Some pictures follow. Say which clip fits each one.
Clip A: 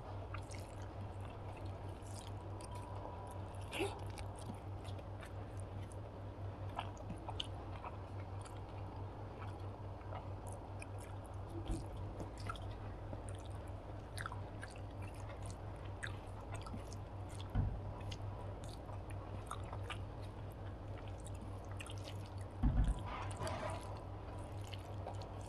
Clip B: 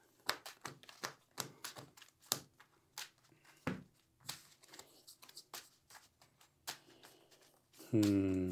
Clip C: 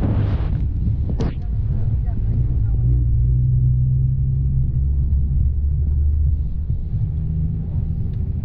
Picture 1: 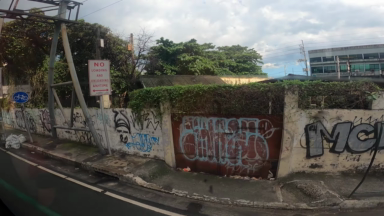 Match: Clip C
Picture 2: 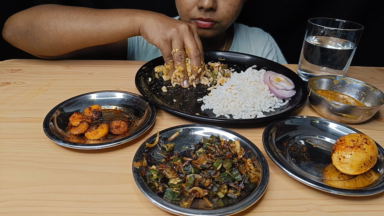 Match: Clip A